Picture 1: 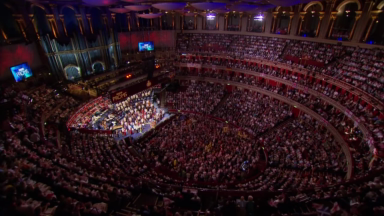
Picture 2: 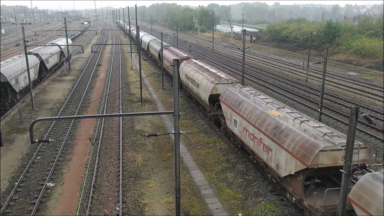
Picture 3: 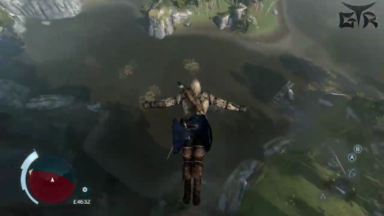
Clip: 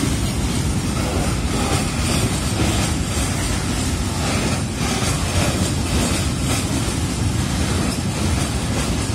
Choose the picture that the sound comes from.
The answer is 2